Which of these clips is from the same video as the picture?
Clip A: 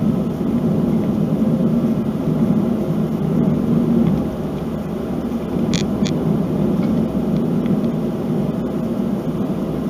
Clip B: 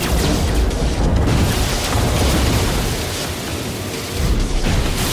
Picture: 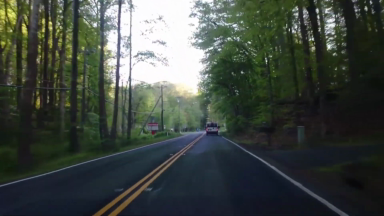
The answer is A